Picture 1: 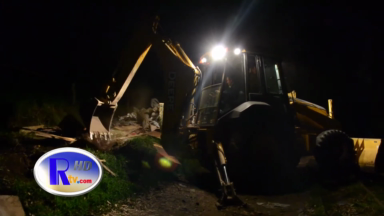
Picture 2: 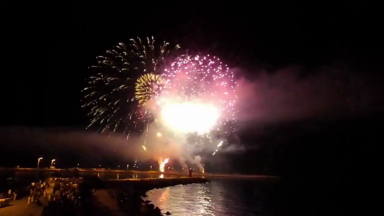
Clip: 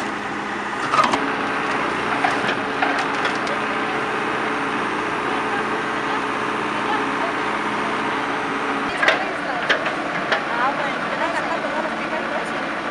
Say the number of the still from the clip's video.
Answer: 1